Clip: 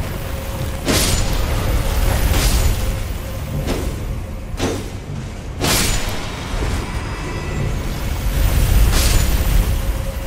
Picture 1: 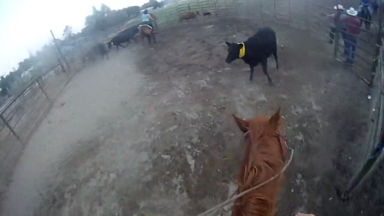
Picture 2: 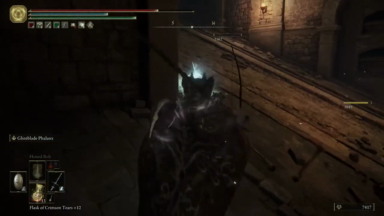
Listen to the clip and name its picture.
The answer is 2